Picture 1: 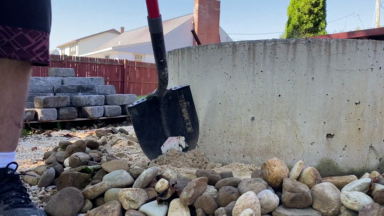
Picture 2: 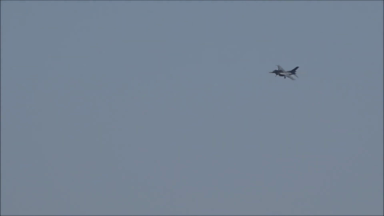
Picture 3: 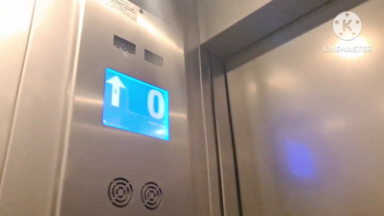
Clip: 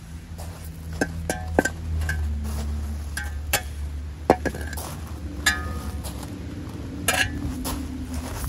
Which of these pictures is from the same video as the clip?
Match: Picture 1